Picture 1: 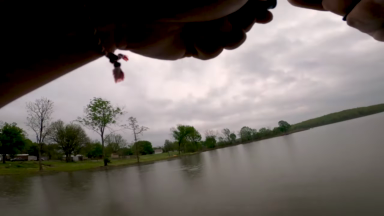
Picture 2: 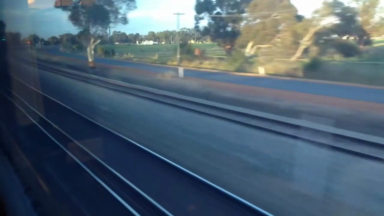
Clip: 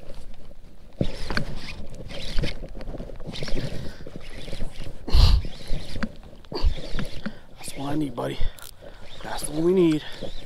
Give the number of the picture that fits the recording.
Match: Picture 1